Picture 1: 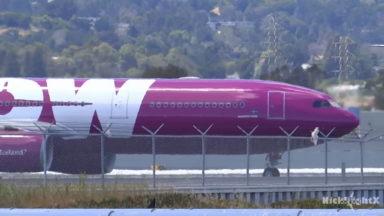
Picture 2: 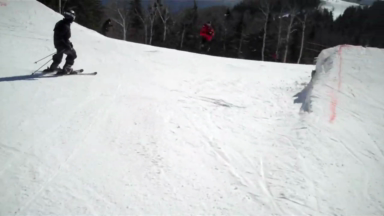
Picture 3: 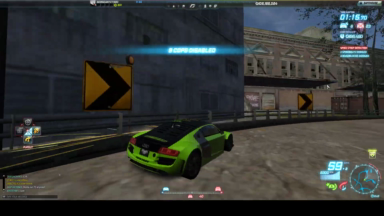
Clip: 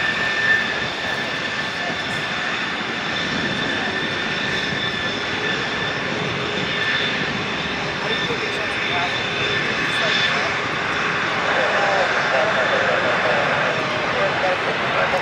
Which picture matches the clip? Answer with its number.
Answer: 1